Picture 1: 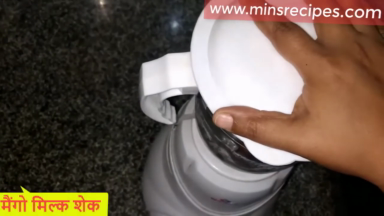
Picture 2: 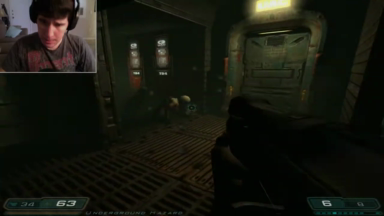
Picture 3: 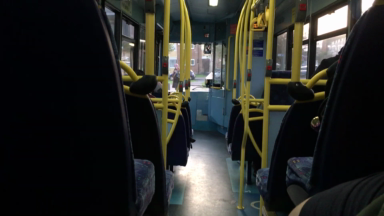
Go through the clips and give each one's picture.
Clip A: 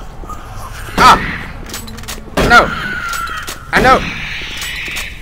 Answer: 2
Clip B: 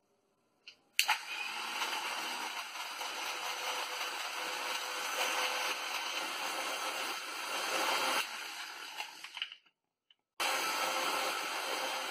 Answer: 1